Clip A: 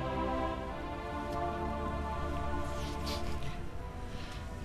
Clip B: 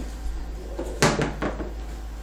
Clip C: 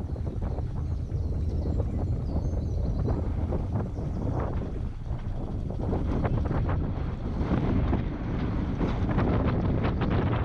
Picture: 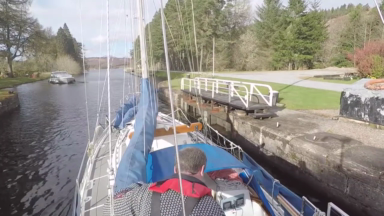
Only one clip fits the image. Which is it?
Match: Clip C